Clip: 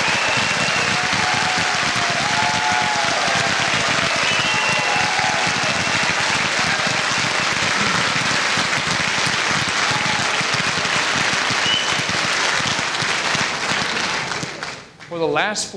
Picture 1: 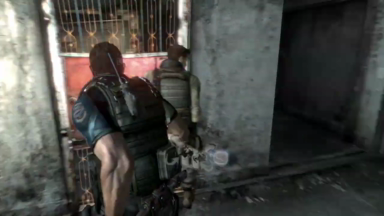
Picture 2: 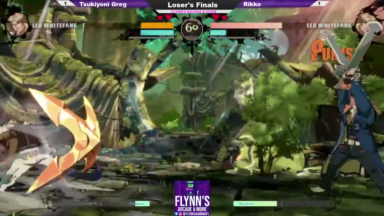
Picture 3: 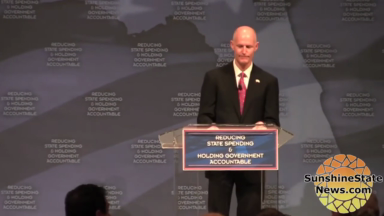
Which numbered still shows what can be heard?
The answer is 3